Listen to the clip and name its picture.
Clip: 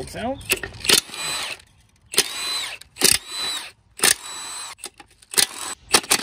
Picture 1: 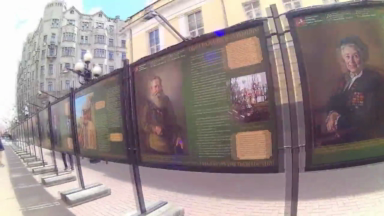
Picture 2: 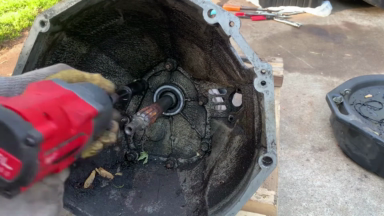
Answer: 2